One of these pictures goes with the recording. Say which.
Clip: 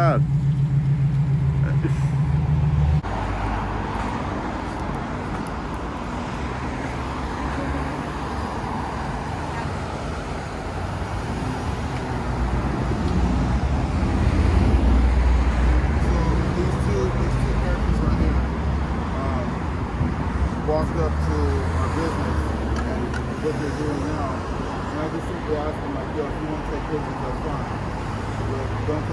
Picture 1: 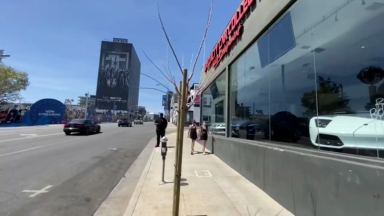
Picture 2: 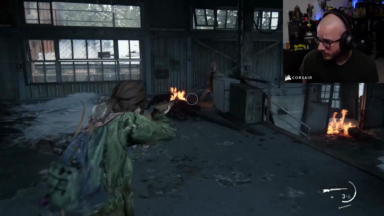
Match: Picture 1